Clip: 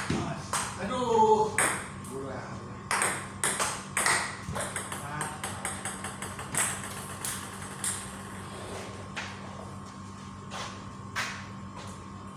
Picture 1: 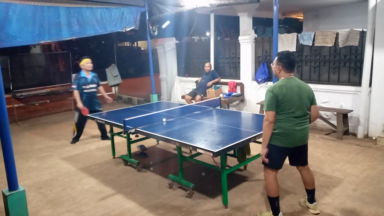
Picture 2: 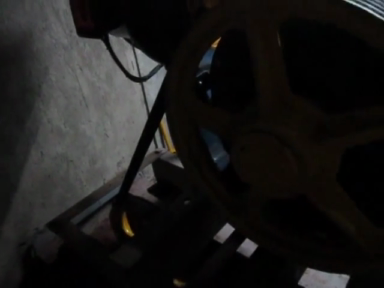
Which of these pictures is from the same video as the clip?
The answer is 1